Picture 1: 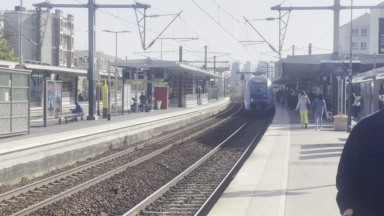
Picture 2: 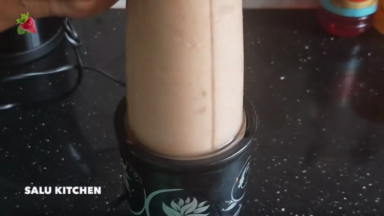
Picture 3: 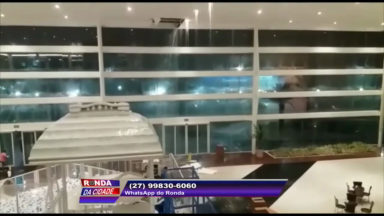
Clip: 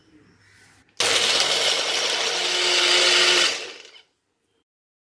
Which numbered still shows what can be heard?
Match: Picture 2